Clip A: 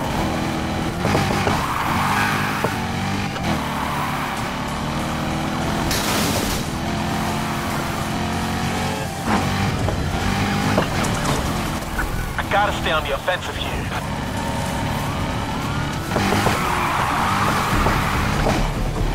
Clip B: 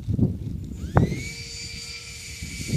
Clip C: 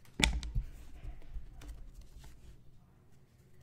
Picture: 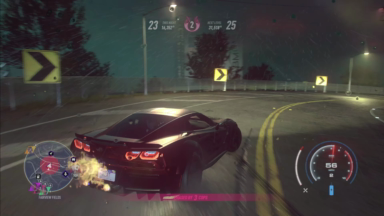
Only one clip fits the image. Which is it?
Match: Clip A